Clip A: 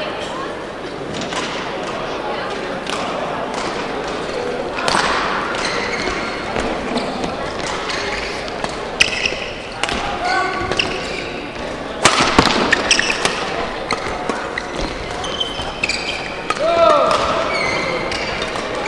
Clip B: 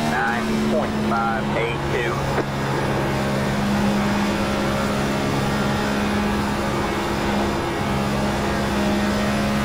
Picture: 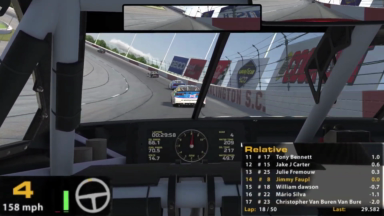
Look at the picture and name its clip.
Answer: B